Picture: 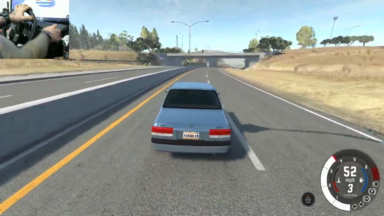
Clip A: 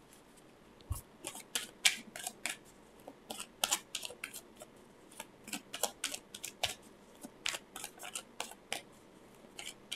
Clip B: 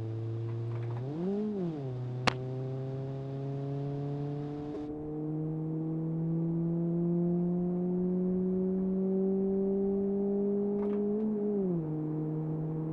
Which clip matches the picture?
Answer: B